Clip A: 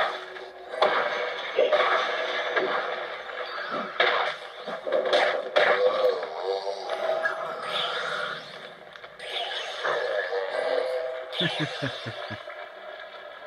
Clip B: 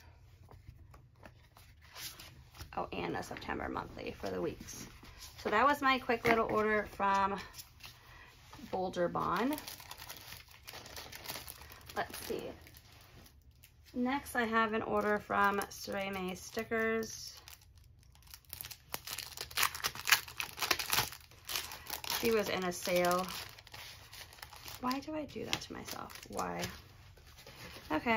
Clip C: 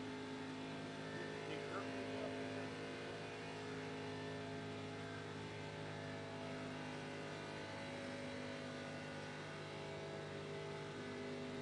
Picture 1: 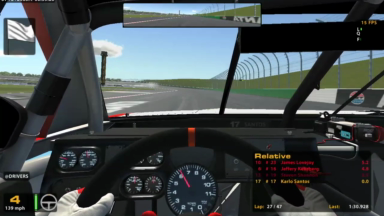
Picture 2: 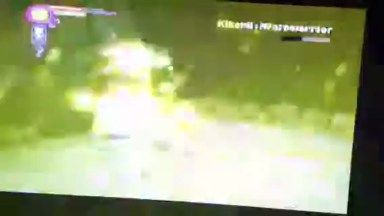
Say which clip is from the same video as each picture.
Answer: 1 C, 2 A